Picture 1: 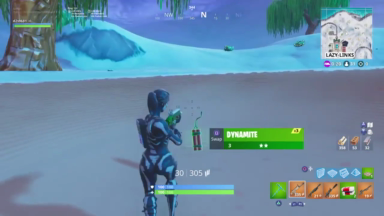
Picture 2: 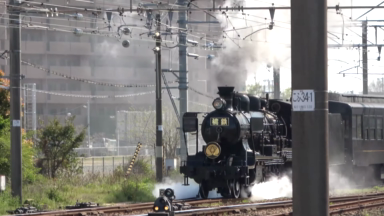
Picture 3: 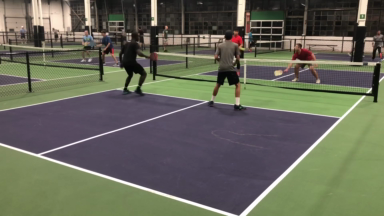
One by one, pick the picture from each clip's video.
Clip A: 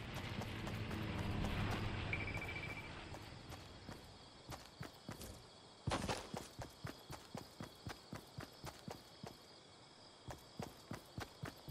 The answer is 1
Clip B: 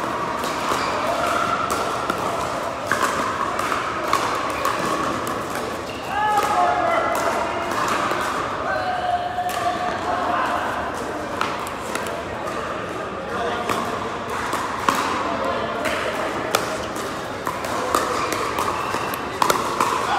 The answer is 3